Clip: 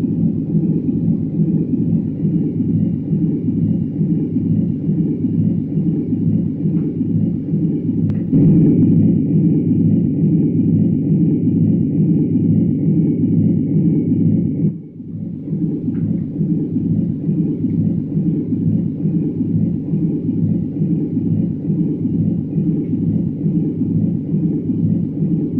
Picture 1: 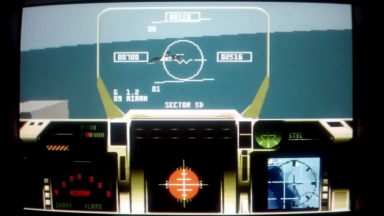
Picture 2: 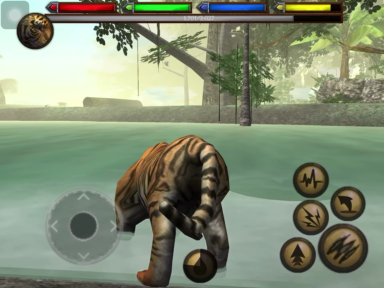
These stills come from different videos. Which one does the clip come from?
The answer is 1